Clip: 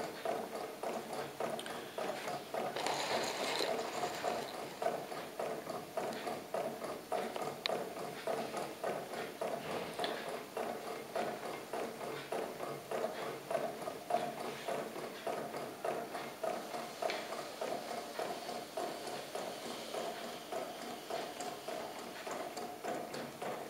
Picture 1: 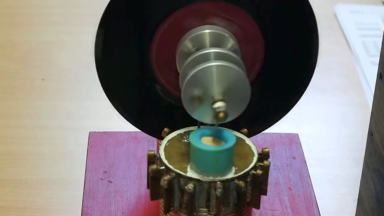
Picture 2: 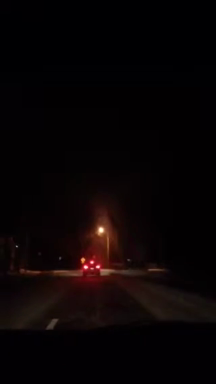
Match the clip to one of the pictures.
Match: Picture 1